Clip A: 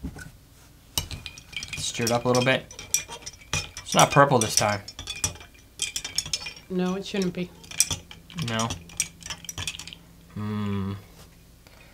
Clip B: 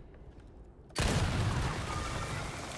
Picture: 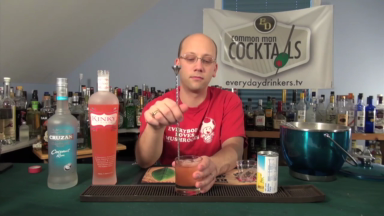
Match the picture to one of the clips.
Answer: A